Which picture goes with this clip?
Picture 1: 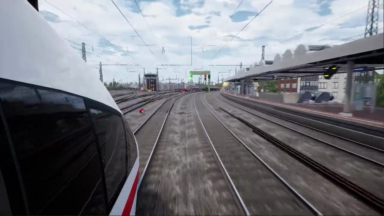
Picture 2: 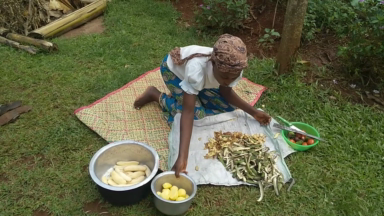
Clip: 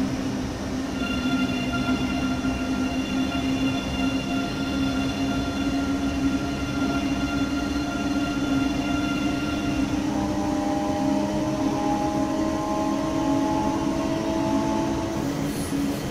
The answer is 1